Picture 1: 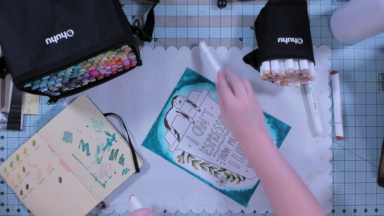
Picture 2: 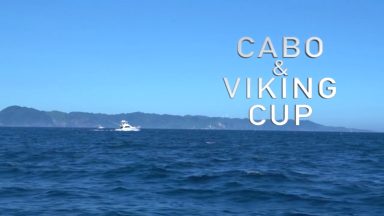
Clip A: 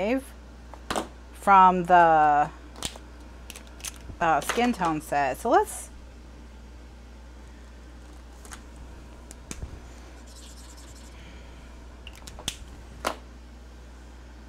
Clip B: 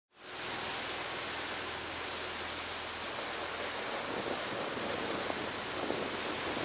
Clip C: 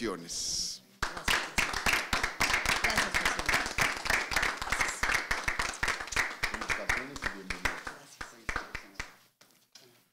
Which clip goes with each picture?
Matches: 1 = A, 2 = B